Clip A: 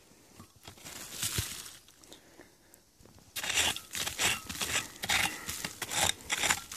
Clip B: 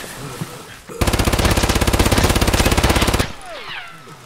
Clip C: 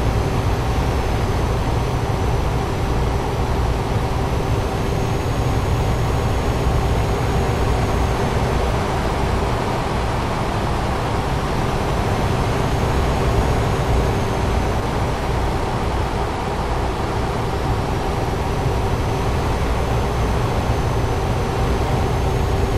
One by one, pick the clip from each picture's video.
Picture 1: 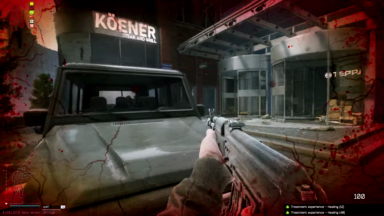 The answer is B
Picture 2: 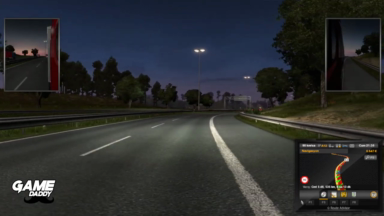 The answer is C